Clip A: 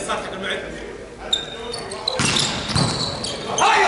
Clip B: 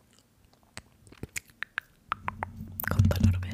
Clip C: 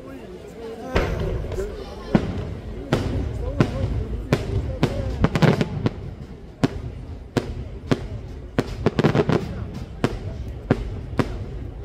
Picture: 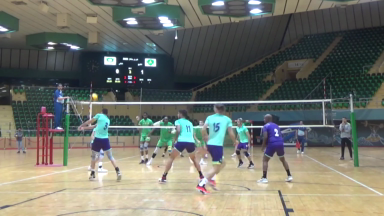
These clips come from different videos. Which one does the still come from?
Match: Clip A